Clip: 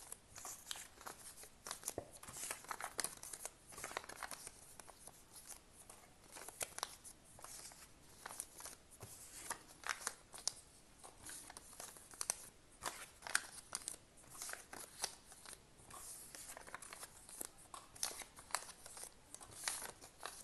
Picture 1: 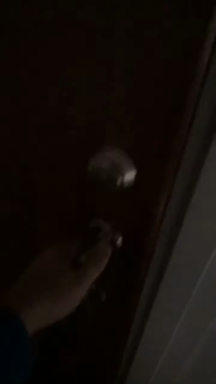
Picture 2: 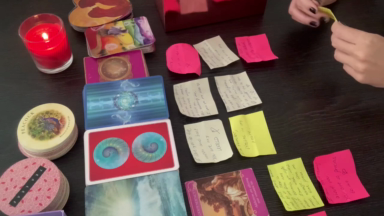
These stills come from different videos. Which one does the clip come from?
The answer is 2